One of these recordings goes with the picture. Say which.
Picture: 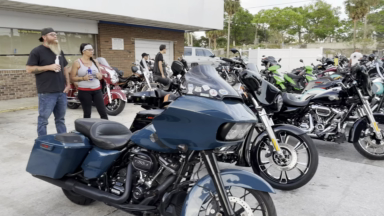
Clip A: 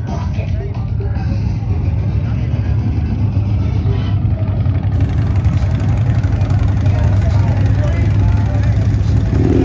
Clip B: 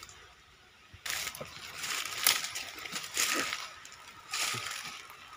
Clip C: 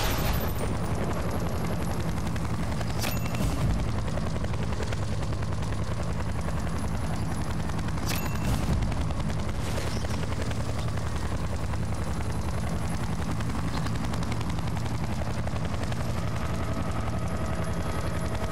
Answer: A